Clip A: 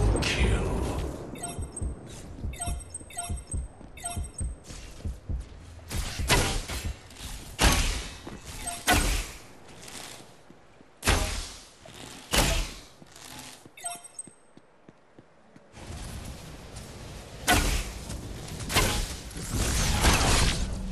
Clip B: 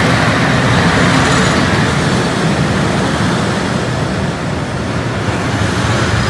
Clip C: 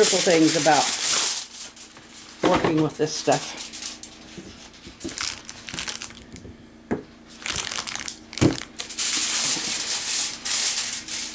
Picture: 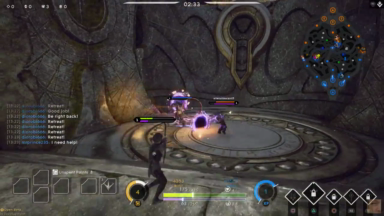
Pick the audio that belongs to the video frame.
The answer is A